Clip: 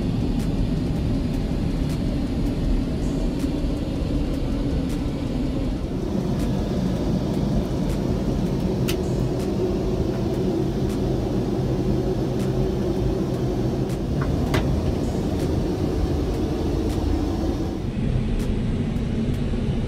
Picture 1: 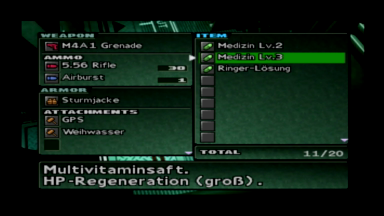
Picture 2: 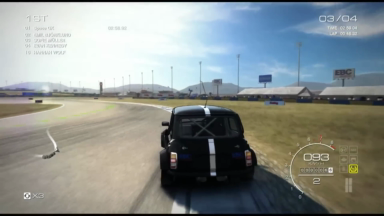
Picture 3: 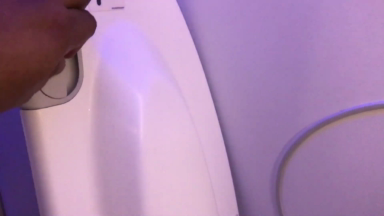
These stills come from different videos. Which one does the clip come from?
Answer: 3